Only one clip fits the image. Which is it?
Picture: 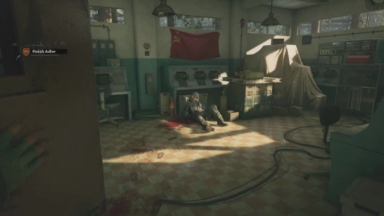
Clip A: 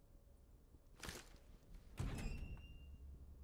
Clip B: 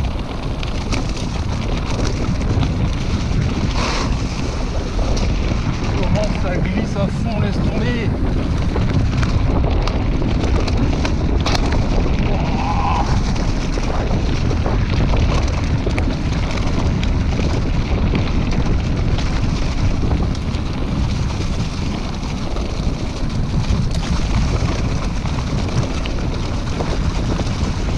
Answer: A